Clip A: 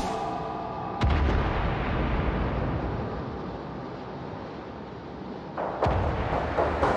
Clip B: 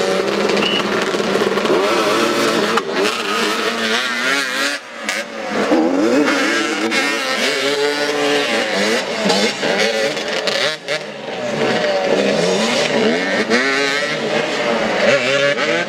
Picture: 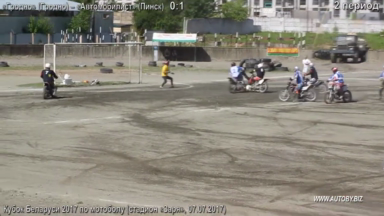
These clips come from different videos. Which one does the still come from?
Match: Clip B